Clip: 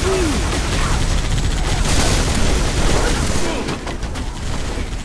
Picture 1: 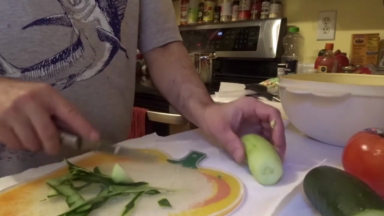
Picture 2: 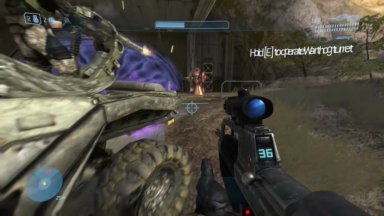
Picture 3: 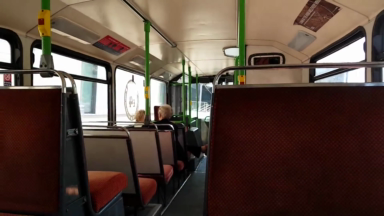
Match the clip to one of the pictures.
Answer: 2